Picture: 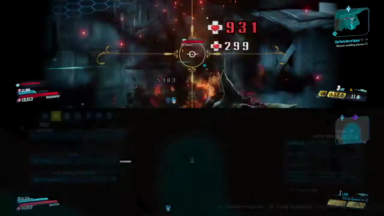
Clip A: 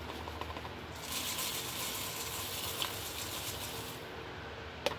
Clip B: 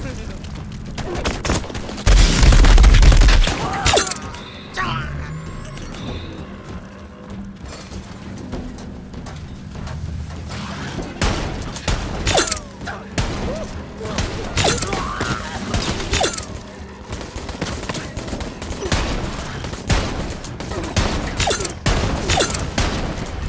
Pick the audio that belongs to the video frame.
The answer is B